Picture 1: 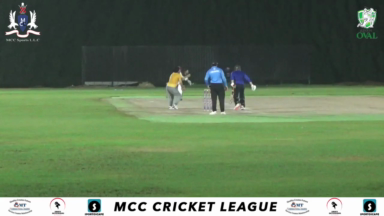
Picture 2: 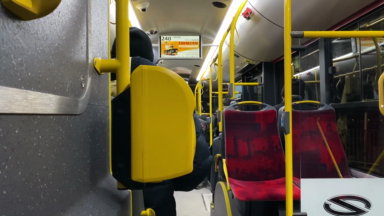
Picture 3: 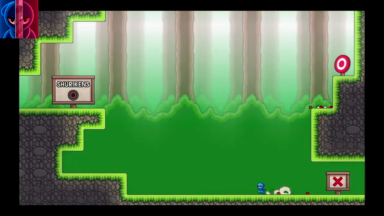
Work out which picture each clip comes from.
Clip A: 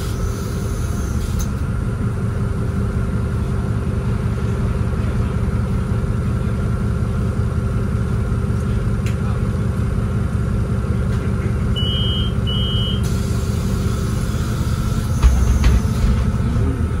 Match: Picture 2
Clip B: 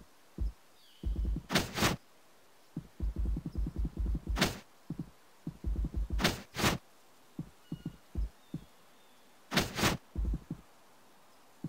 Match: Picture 3